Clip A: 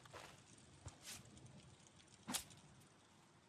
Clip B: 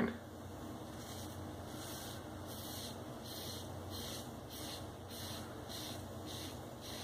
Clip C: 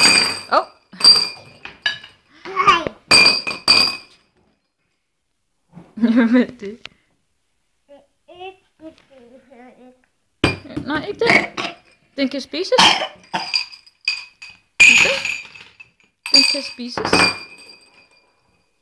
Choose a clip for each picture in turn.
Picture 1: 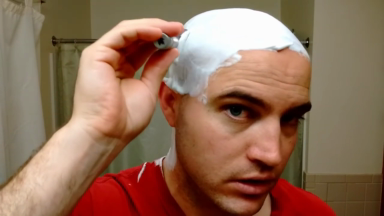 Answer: B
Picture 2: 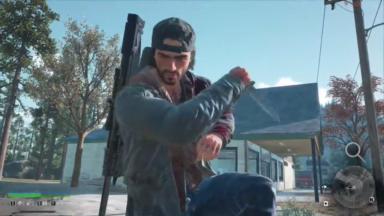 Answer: A